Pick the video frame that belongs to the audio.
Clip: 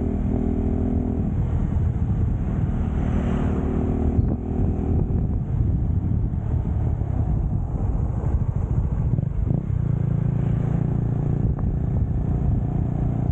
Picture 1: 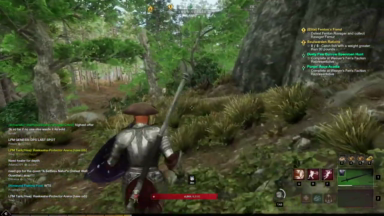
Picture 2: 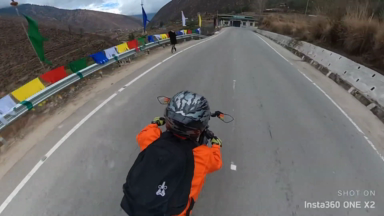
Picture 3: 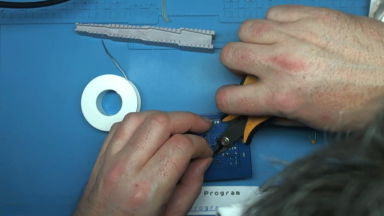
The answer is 2